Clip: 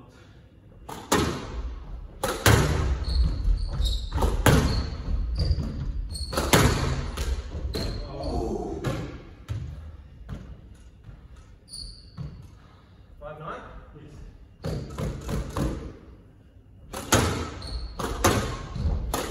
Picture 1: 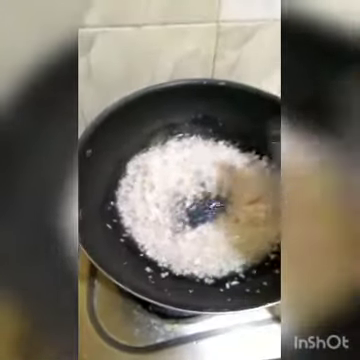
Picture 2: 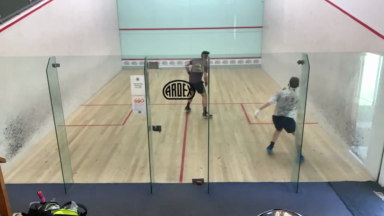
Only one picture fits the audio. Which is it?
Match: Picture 2